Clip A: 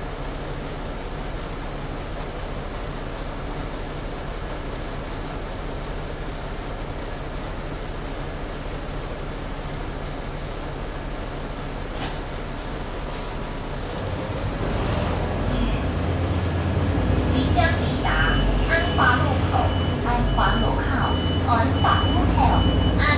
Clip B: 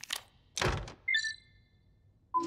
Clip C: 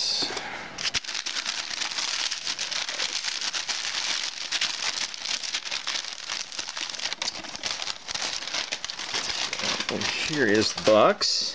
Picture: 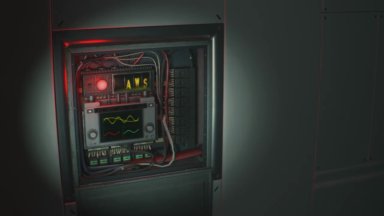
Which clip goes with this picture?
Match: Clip B